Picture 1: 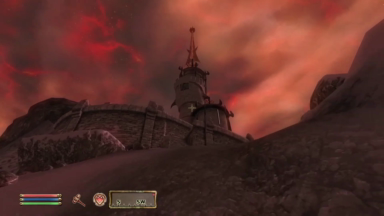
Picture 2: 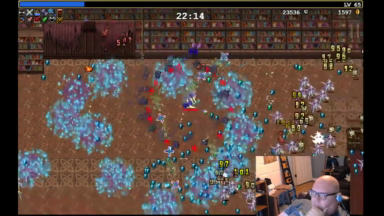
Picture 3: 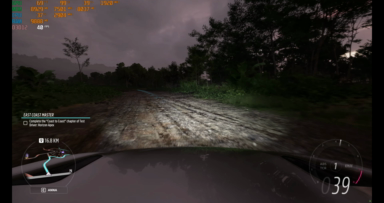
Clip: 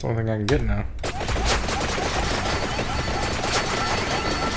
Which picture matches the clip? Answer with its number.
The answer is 2